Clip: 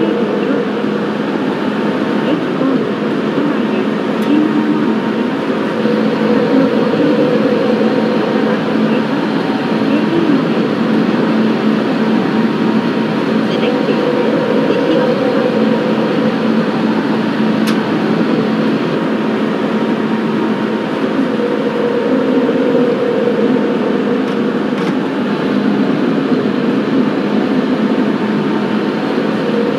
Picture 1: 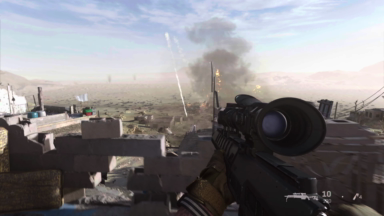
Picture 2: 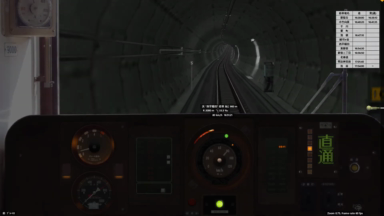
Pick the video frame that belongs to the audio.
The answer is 2